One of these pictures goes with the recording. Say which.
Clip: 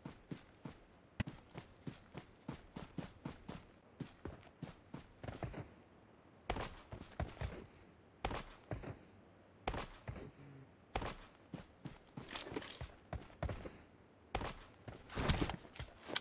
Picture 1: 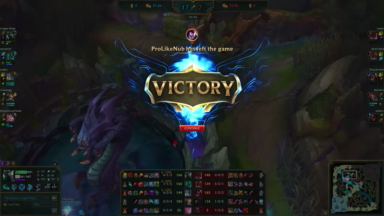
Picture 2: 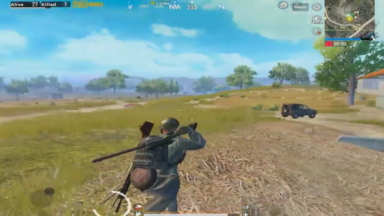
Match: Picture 2